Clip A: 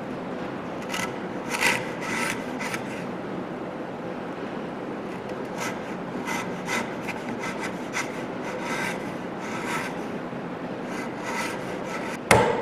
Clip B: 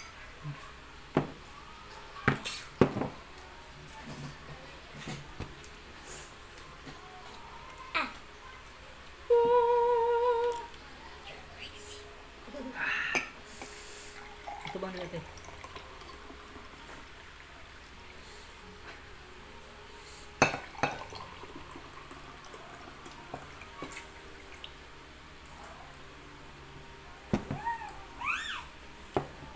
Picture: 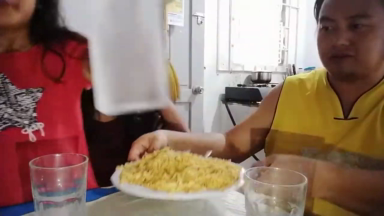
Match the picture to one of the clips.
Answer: B